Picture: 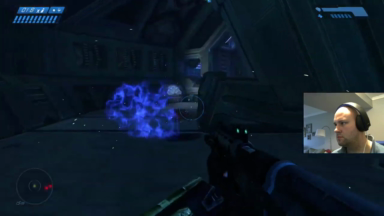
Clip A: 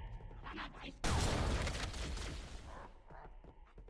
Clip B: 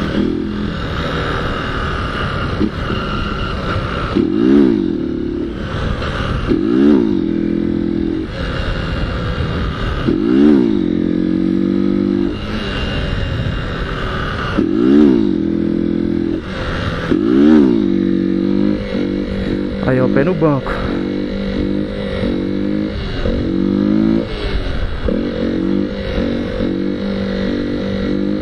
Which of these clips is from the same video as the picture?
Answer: A